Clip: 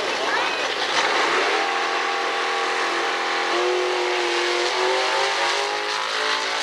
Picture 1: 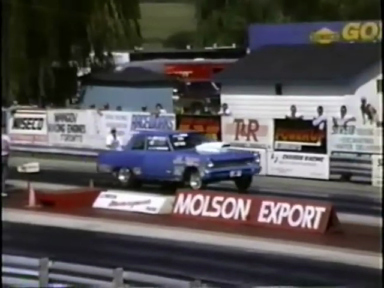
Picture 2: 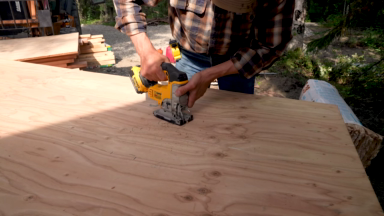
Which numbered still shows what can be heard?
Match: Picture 1